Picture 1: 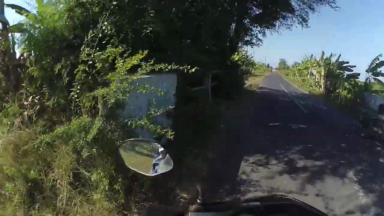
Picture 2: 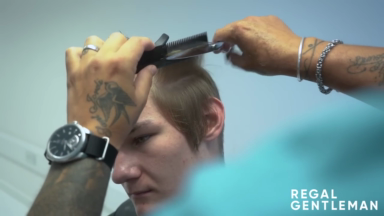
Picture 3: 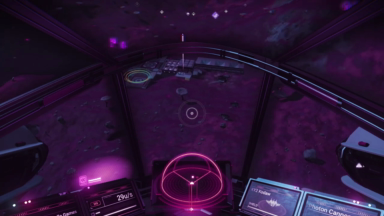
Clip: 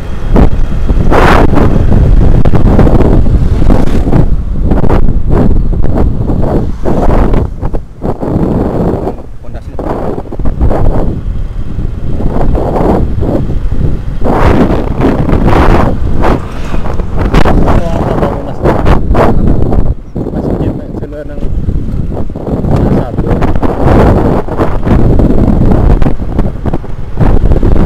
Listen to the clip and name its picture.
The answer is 1